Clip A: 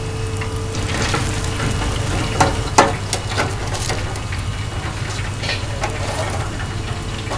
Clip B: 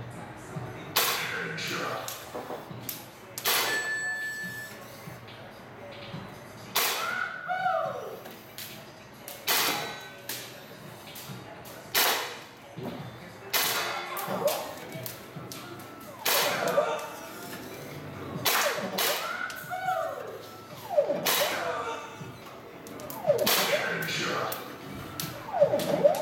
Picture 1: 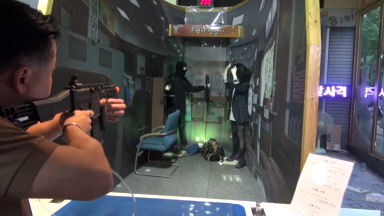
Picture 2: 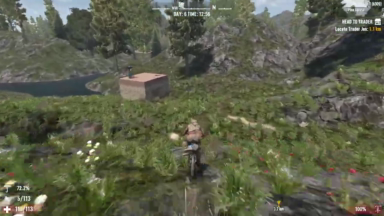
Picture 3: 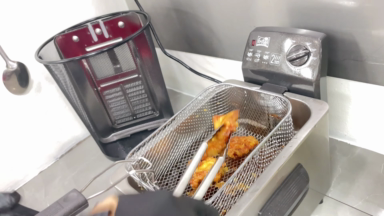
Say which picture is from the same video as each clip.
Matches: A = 3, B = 1